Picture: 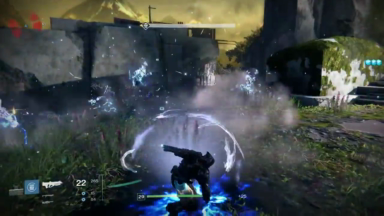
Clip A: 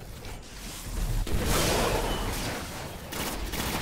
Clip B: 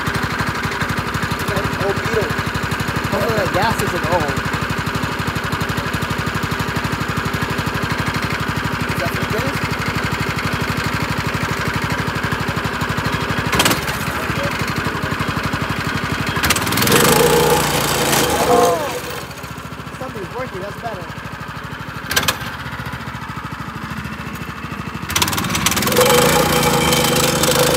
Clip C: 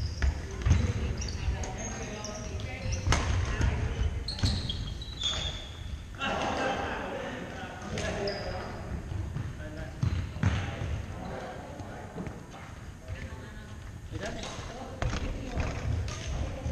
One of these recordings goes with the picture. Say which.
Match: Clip A